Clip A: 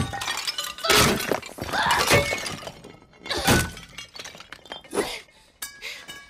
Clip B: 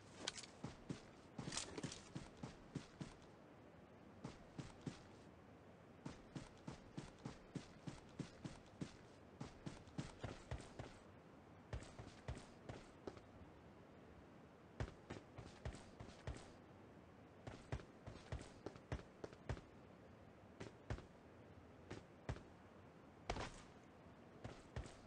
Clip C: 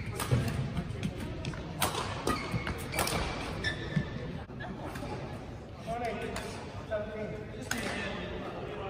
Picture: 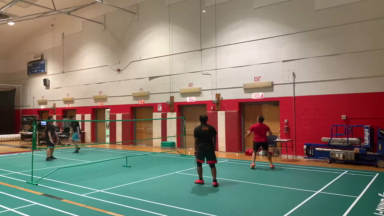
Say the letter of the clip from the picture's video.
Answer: C